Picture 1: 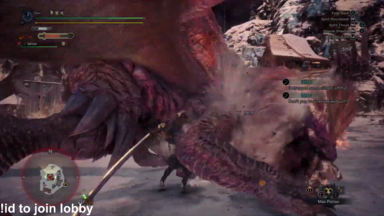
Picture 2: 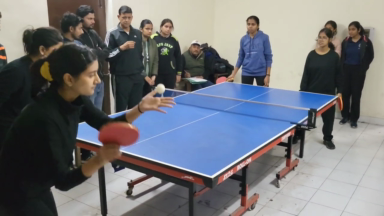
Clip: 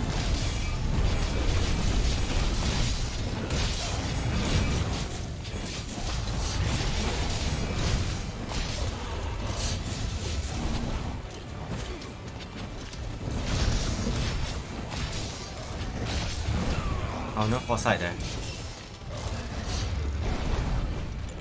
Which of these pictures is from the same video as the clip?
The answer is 1